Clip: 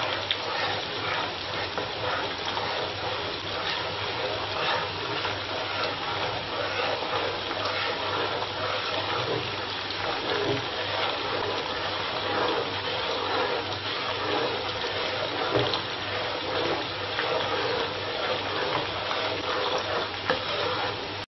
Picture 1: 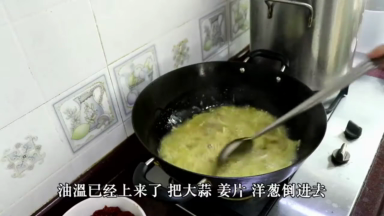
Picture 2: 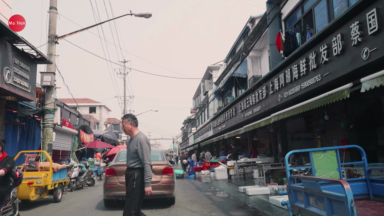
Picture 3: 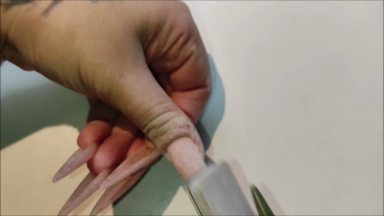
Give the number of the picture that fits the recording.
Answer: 1